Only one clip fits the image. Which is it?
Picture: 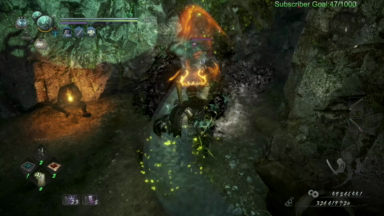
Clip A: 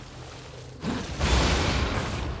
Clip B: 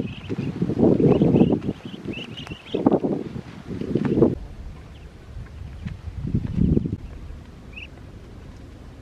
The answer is A